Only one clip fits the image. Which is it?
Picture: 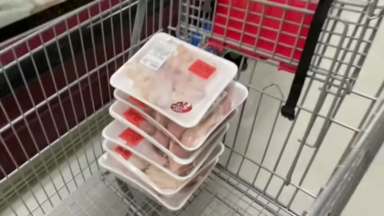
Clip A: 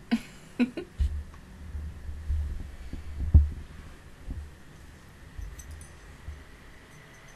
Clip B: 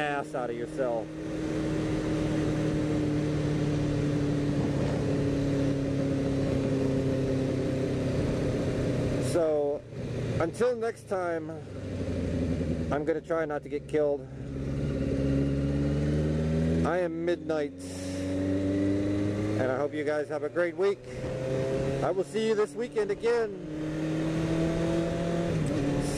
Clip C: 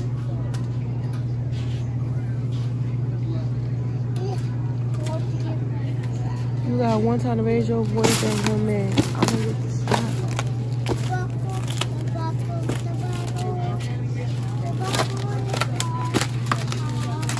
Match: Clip C